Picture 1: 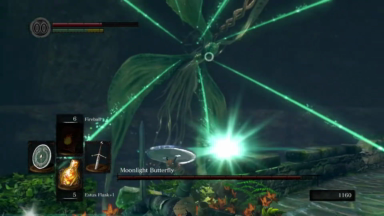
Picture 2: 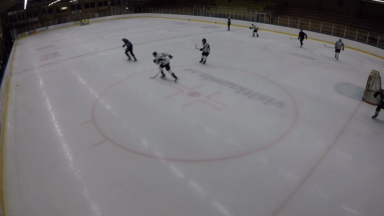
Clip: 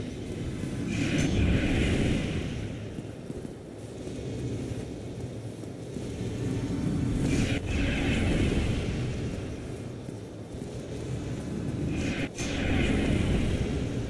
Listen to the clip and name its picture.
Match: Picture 1